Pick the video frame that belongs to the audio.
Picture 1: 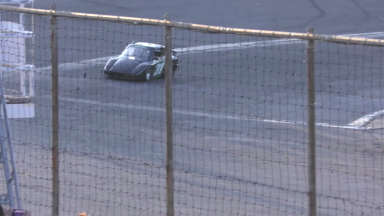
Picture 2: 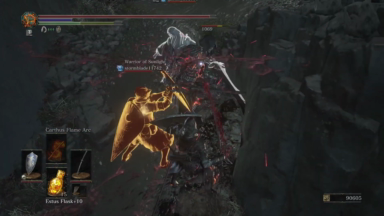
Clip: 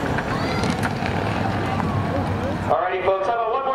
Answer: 1